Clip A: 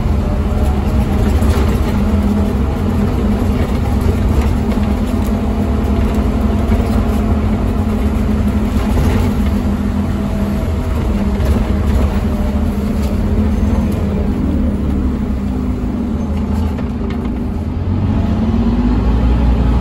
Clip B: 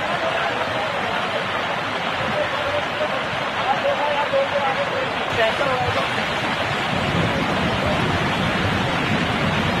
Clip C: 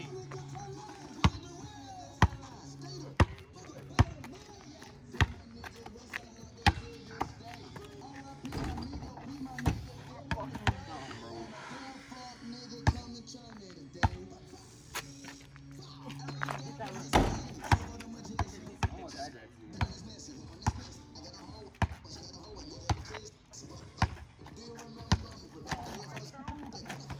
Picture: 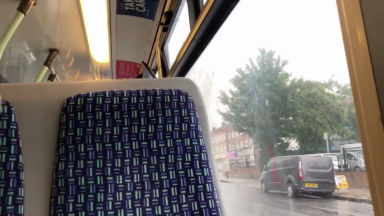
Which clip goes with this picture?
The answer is A